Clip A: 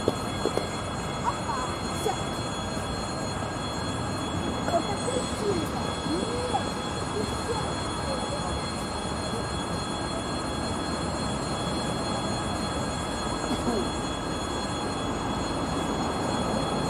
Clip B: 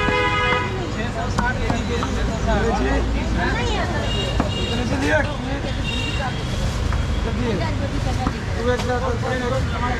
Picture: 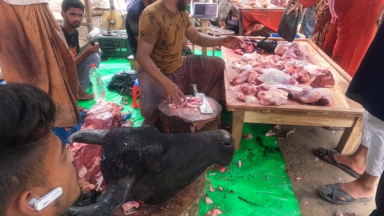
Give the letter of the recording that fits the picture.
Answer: B